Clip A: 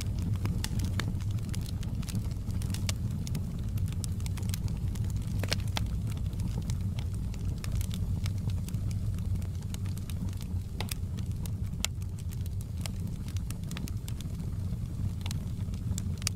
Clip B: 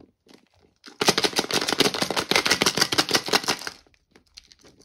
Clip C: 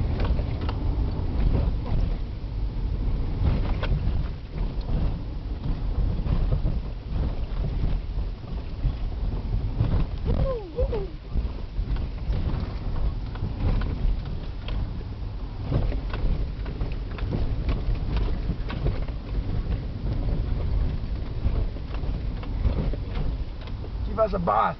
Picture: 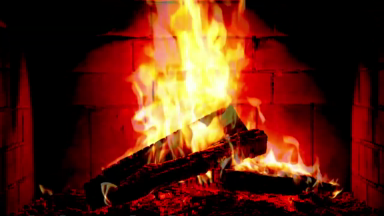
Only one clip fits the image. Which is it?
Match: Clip A